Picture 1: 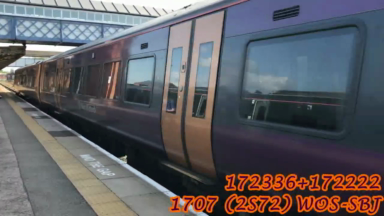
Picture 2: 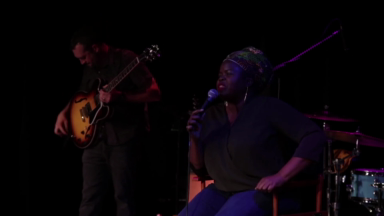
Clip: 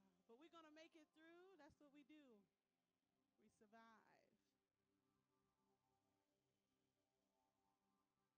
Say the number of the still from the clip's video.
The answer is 2